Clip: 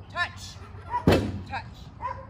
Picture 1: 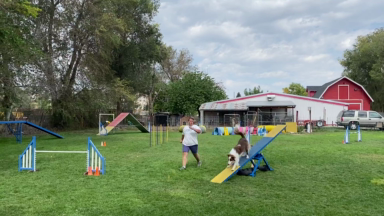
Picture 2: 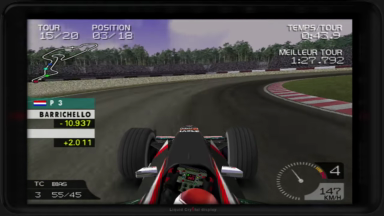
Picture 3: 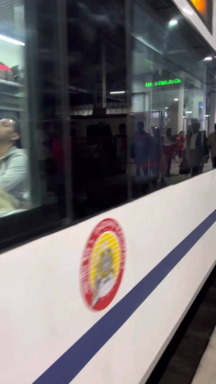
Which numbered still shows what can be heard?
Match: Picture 1